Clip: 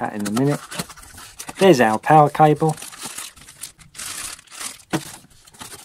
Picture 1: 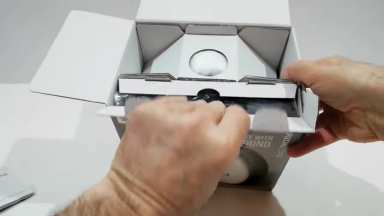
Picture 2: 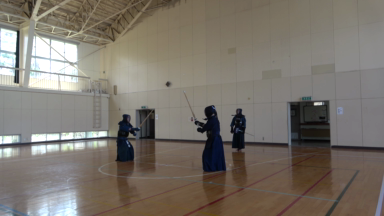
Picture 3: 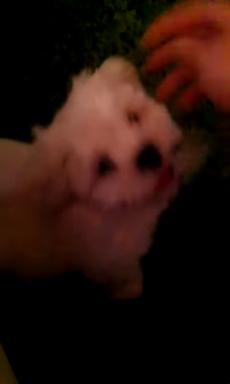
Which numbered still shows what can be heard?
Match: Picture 1